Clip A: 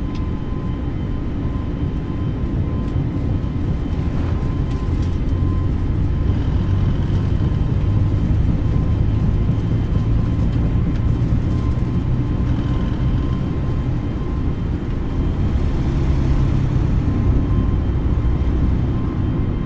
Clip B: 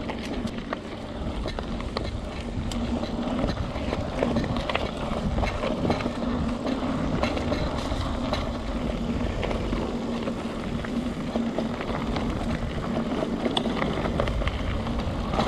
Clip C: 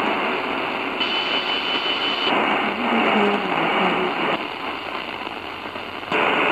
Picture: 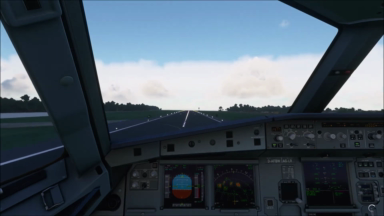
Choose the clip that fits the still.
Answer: A